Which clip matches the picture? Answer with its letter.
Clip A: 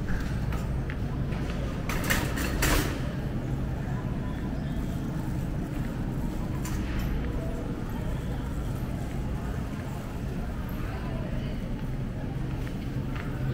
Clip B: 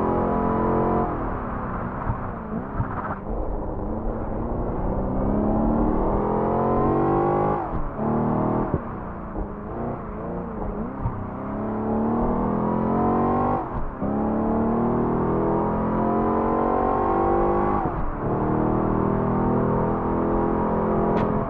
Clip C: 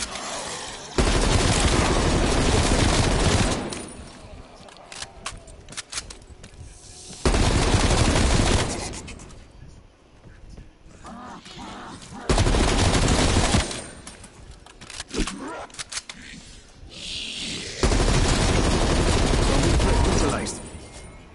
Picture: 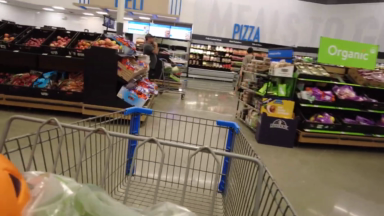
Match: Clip A